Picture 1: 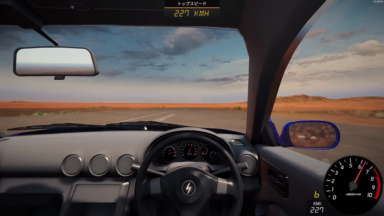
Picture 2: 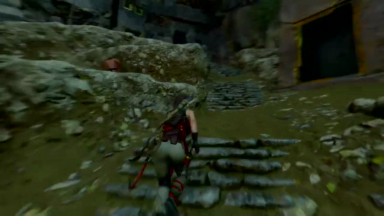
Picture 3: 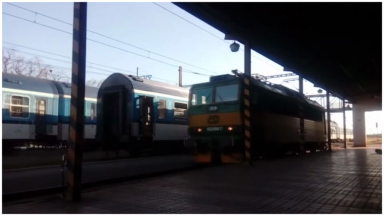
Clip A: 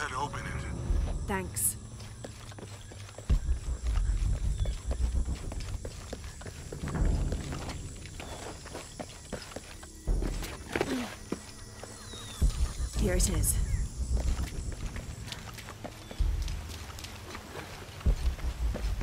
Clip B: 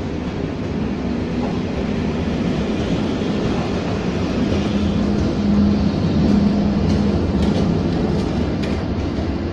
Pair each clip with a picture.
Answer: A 2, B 3